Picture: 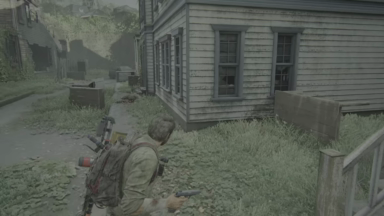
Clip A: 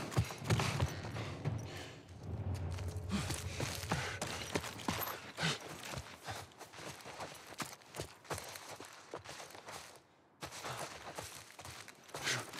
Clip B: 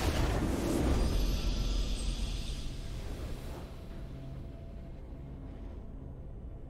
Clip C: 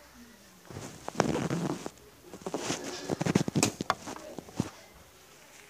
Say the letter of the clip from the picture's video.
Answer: A